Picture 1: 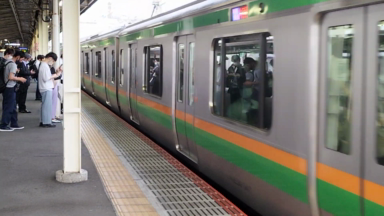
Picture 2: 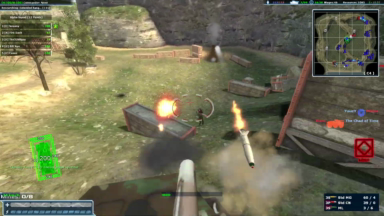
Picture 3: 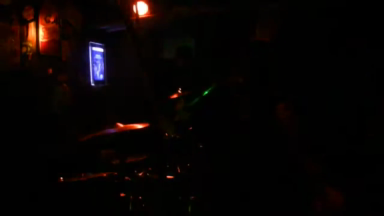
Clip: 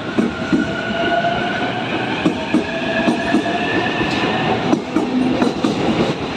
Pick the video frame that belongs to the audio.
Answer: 1